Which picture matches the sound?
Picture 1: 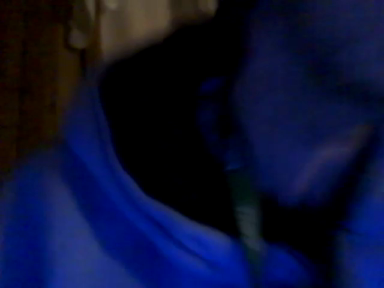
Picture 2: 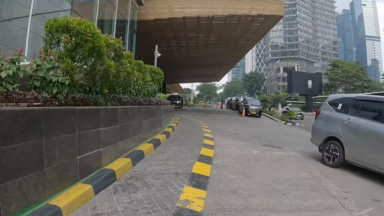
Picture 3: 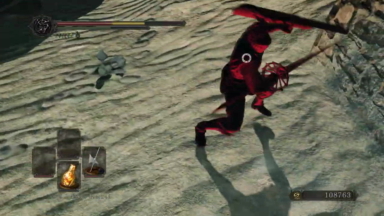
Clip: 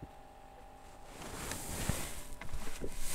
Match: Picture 1